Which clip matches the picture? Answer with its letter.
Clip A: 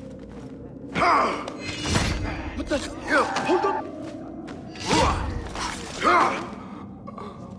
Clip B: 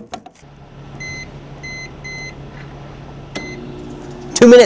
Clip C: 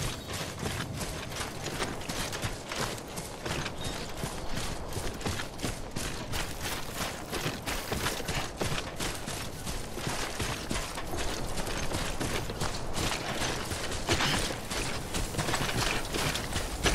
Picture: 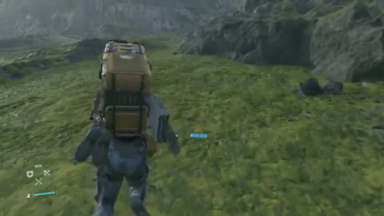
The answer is C